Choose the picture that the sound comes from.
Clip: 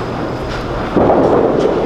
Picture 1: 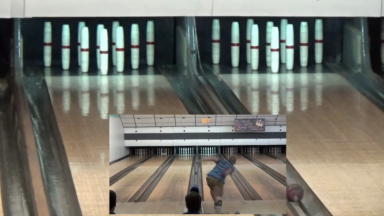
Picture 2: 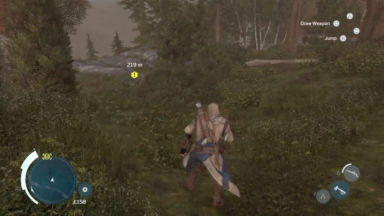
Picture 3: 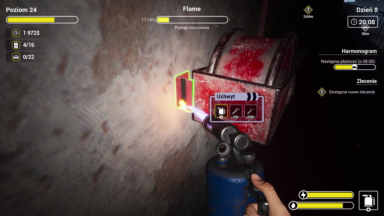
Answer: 1